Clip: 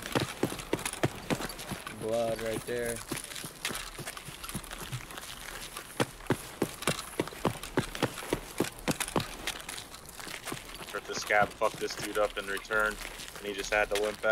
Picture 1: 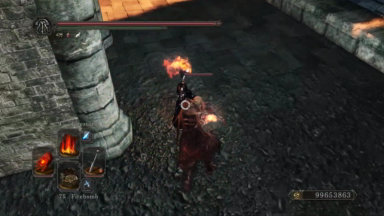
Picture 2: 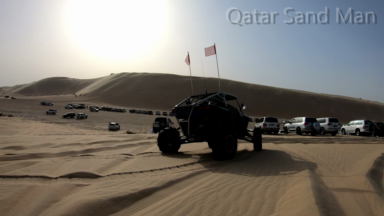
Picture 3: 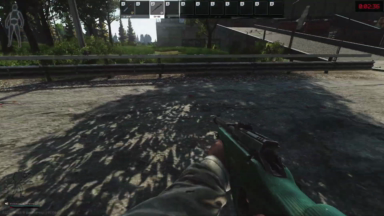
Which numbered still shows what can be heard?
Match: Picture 3